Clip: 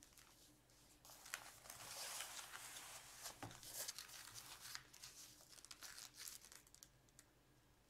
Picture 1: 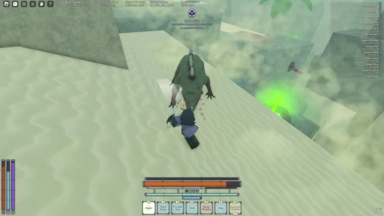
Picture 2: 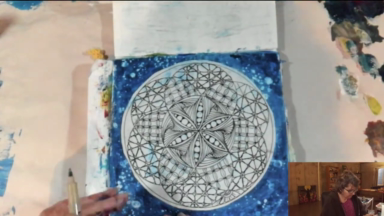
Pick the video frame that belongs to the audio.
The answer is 2